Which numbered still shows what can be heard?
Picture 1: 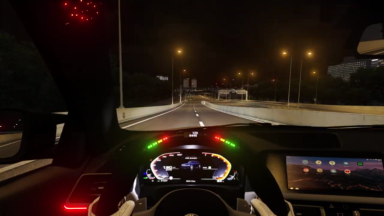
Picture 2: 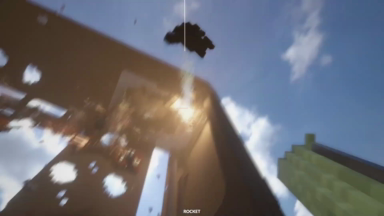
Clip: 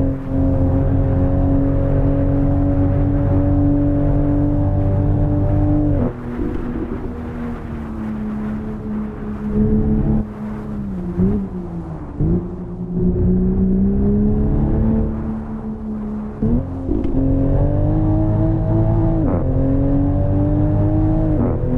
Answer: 1